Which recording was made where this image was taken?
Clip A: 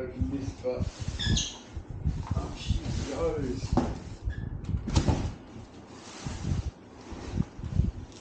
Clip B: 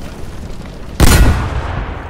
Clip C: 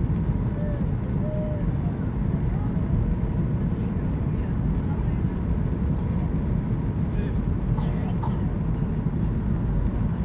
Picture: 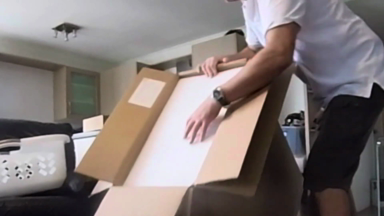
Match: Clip A